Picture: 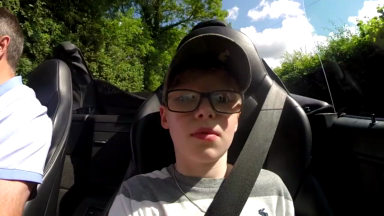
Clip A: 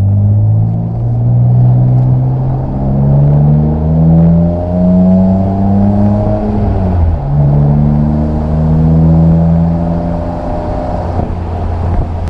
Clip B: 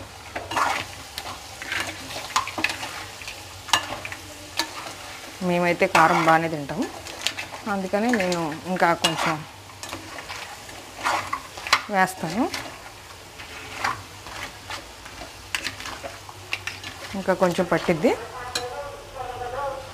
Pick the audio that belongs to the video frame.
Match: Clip A